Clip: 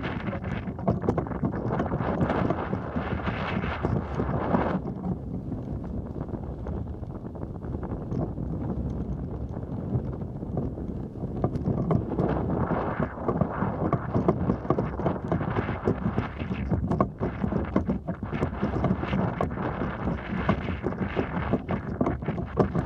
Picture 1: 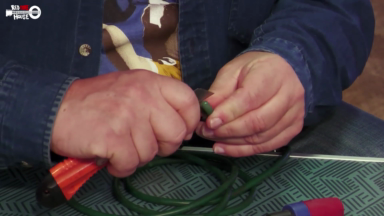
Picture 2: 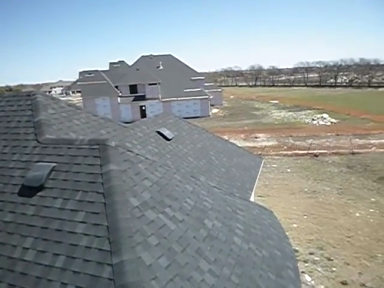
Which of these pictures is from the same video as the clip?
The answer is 2